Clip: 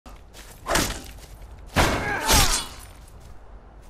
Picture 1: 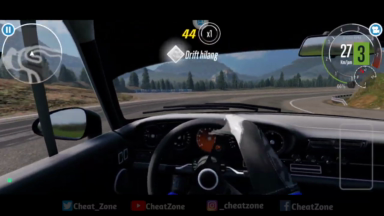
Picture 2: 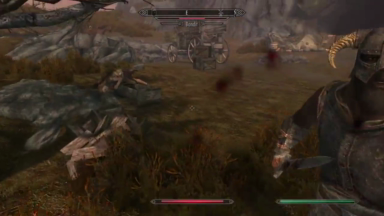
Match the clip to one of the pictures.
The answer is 2